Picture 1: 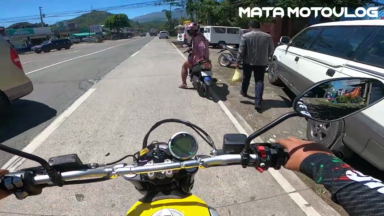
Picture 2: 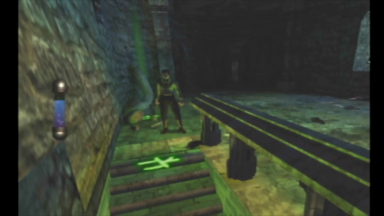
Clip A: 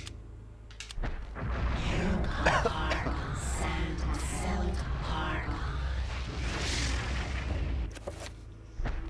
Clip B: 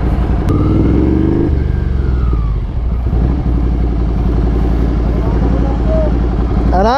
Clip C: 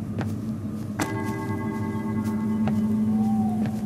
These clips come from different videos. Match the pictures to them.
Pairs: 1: B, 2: A